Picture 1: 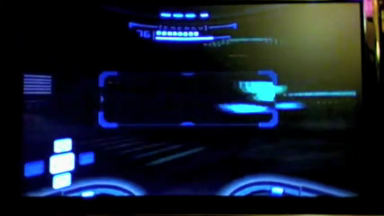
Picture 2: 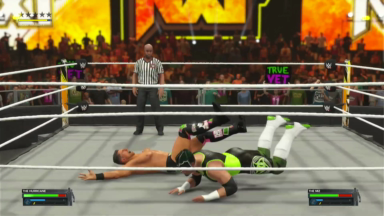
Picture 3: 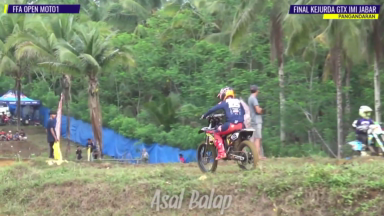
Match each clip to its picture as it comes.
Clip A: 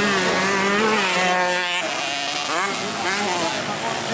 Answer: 3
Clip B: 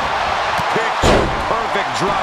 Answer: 2